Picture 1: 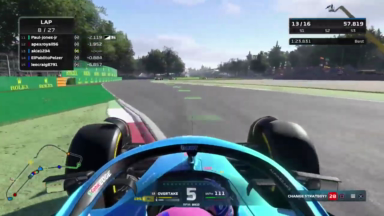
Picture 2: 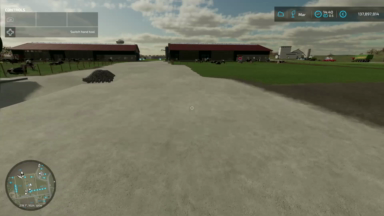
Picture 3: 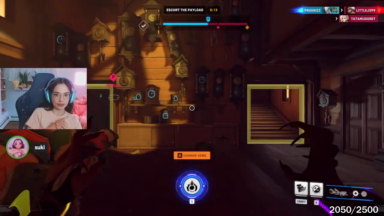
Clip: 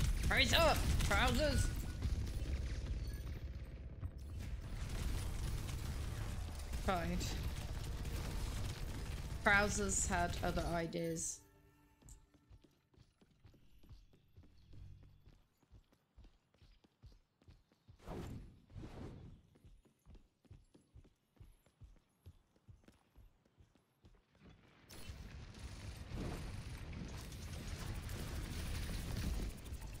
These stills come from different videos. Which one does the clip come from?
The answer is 3